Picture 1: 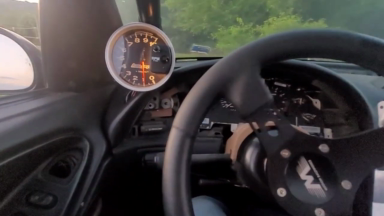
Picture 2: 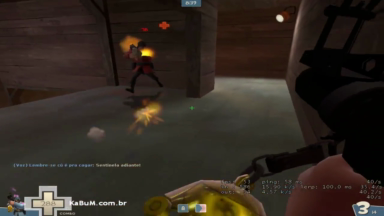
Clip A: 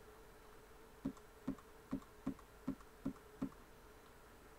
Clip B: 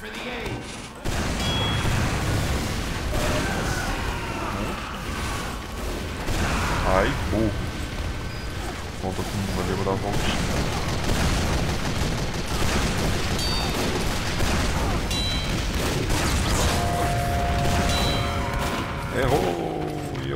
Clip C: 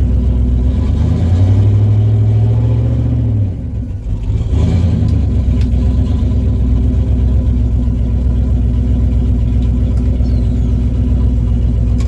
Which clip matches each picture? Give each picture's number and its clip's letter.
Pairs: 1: C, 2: B